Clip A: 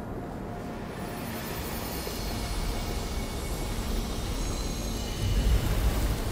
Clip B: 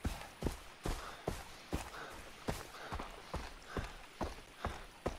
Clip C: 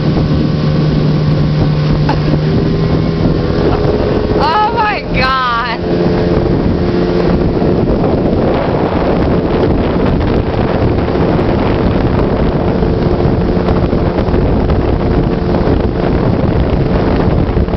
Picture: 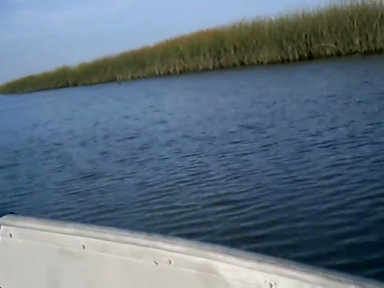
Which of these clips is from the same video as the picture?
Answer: C